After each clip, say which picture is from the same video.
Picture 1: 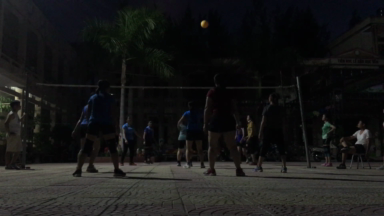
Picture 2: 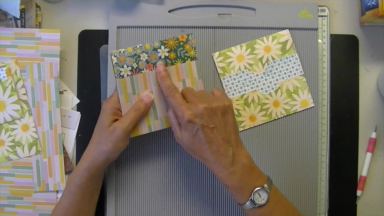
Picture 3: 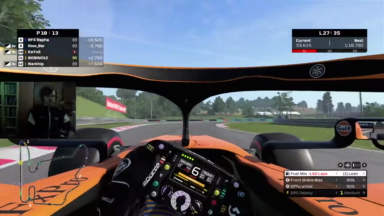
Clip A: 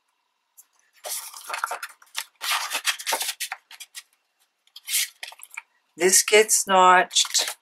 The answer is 2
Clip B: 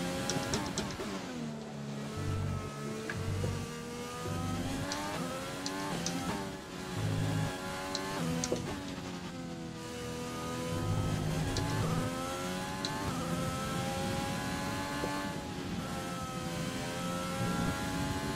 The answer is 3